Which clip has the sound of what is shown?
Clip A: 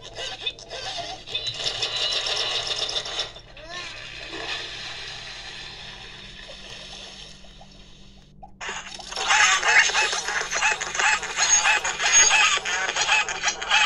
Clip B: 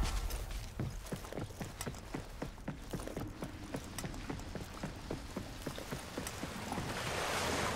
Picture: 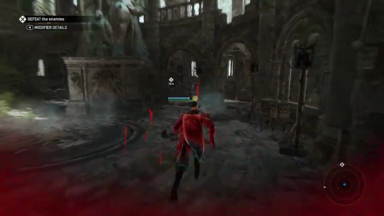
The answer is B